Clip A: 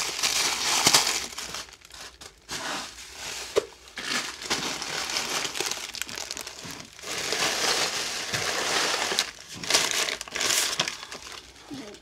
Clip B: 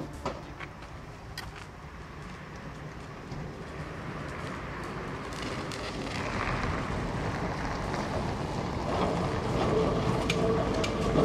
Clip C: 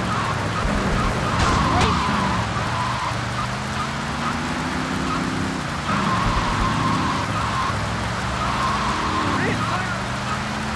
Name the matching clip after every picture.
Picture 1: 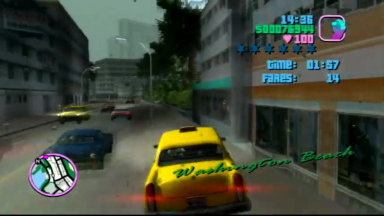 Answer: C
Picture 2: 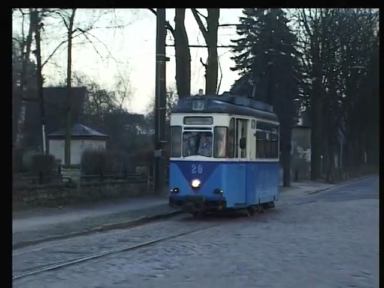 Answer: B